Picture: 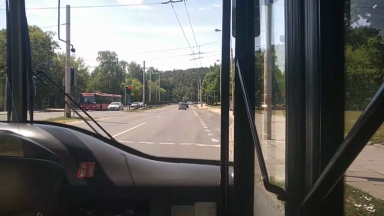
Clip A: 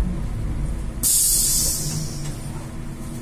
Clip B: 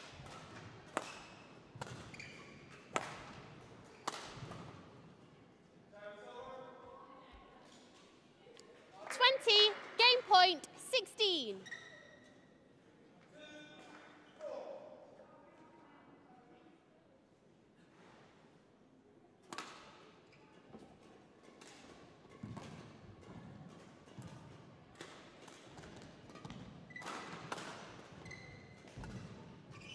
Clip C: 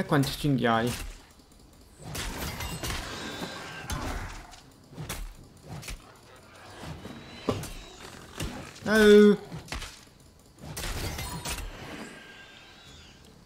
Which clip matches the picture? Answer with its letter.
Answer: A